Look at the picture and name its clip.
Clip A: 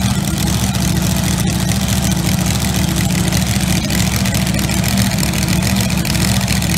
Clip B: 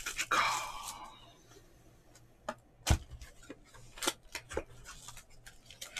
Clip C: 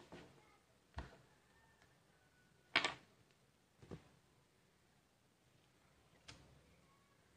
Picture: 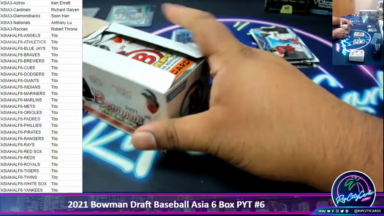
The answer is B